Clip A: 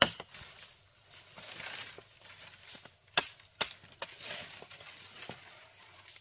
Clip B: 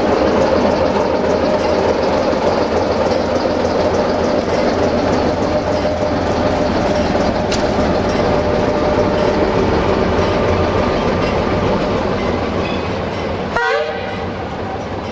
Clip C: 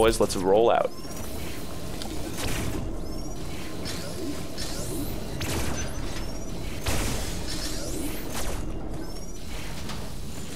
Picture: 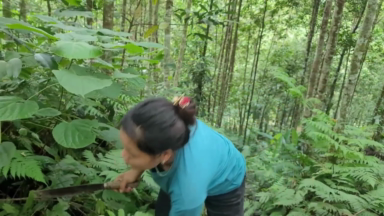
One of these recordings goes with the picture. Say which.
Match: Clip A